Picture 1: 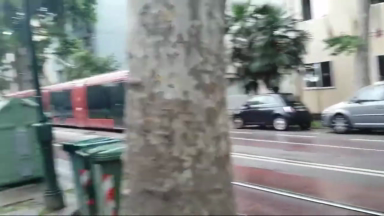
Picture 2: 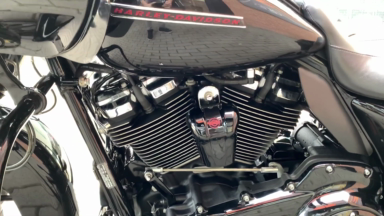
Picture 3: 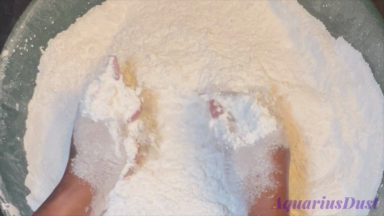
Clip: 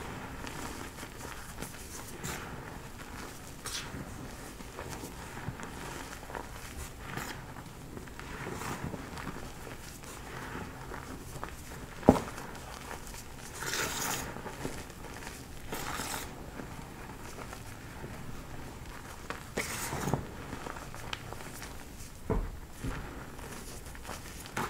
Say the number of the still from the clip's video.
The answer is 3